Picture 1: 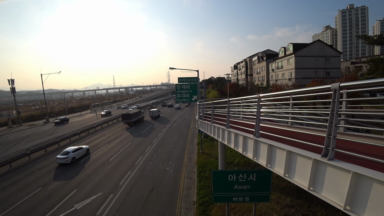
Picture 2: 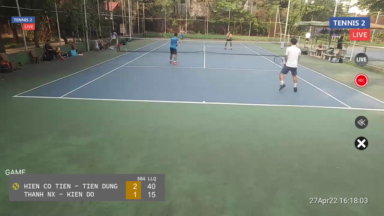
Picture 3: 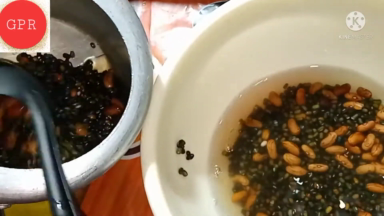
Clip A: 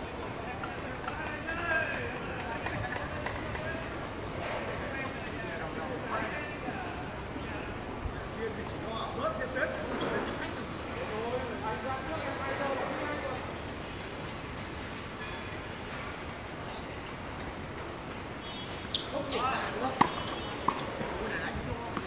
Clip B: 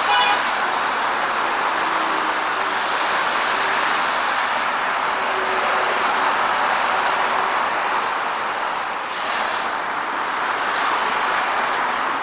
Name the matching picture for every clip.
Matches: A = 2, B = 1